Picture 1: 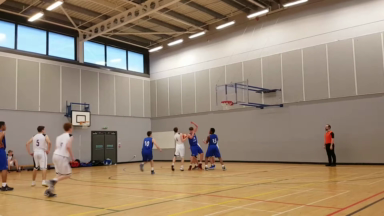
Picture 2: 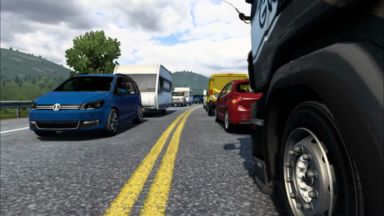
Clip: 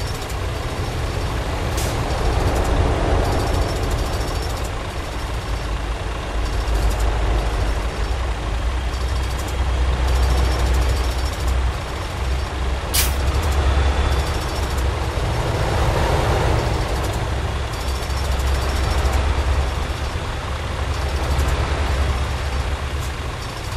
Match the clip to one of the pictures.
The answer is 2